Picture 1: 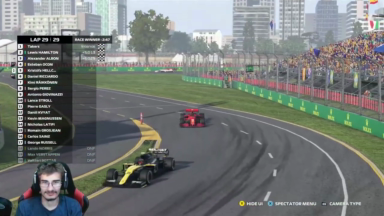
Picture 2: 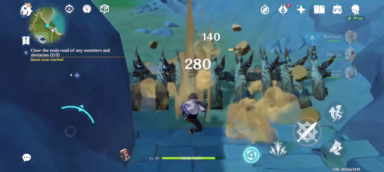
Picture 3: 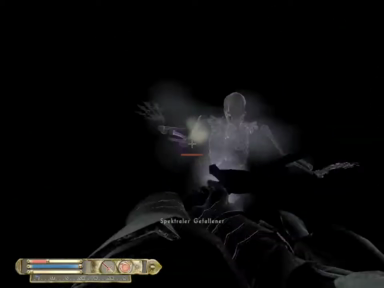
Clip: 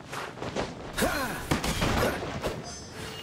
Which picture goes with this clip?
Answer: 2